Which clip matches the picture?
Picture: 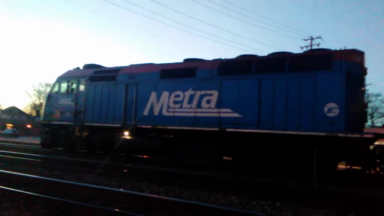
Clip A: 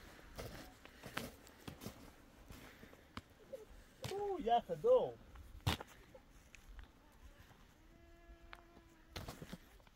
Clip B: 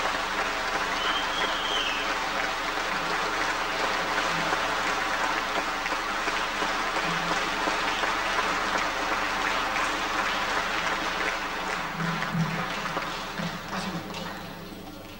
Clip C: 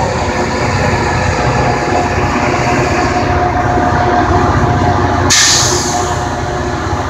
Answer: C